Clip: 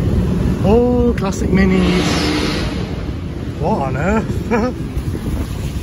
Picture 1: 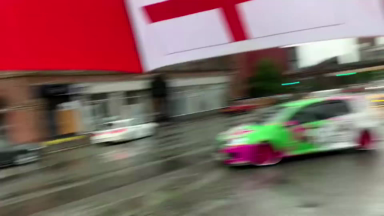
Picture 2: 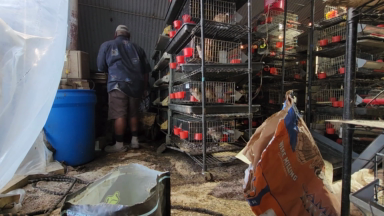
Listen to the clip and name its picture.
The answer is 1